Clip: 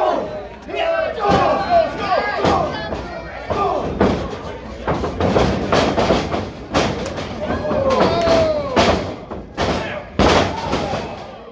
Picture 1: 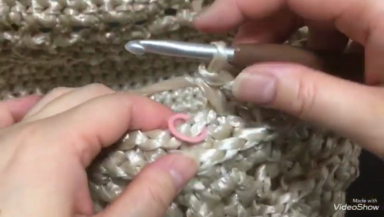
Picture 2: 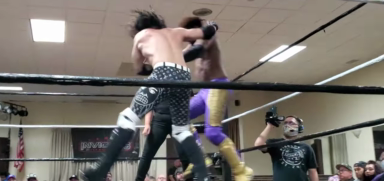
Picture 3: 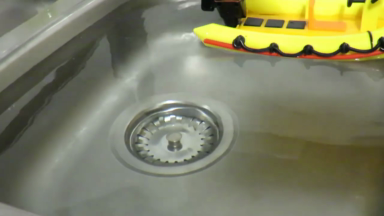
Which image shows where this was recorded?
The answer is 2